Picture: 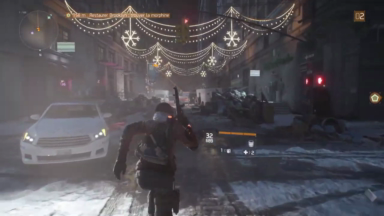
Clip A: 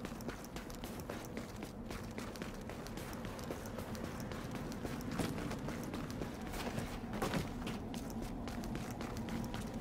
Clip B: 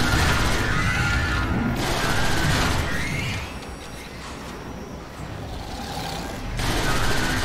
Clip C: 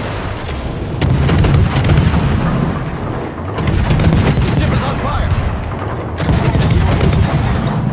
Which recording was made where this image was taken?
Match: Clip A